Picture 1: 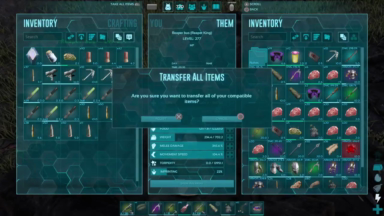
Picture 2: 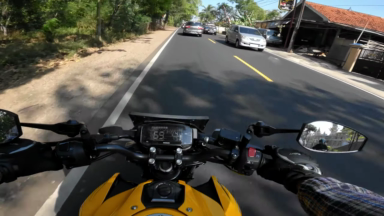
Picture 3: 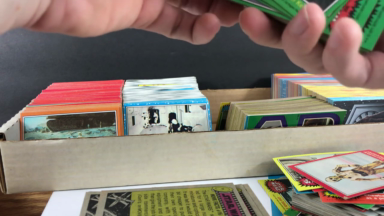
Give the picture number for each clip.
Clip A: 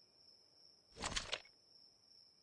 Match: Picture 1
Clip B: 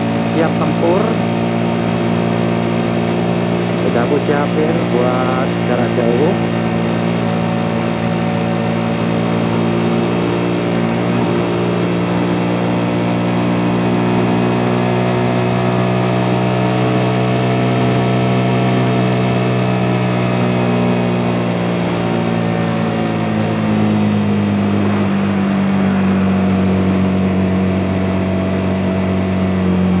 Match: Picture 2